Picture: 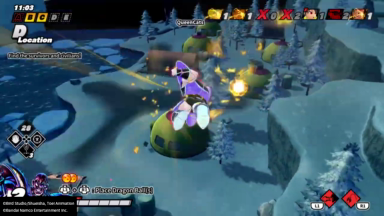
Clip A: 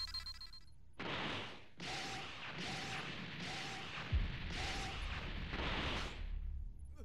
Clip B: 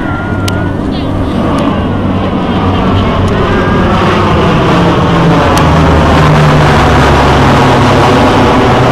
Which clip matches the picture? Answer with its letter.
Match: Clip A